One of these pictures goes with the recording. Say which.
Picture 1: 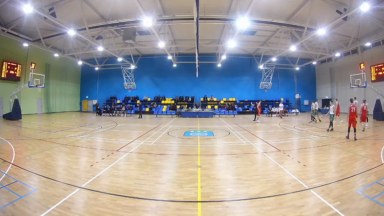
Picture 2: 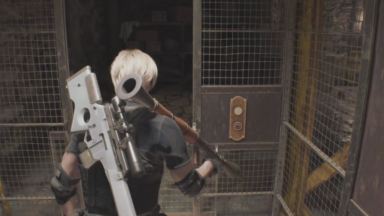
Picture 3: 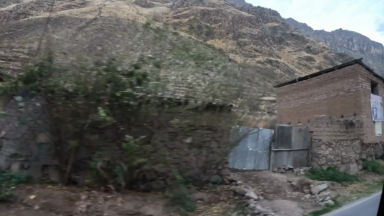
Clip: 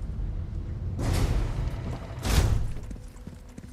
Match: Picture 2